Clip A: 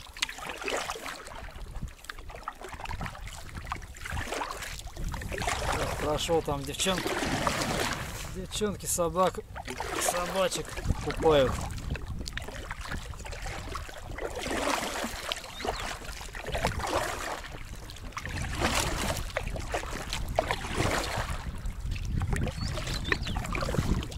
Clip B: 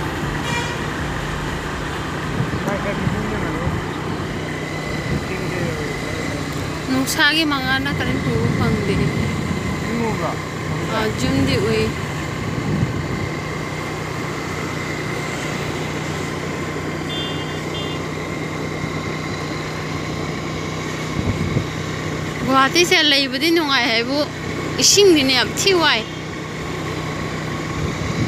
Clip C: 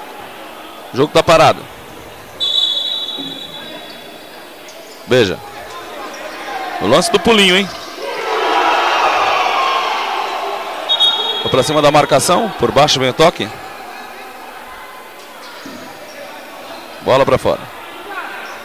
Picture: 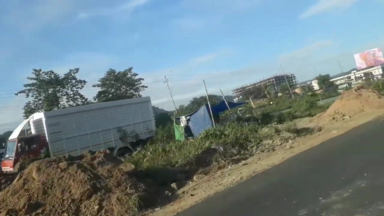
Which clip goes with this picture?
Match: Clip B